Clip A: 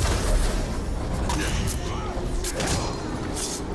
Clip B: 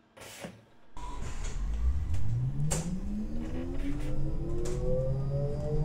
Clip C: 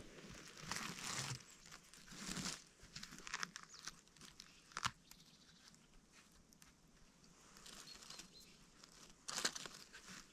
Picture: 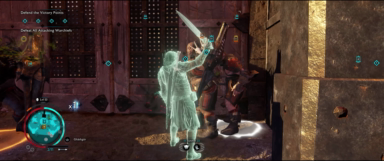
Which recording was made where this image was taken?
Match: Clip A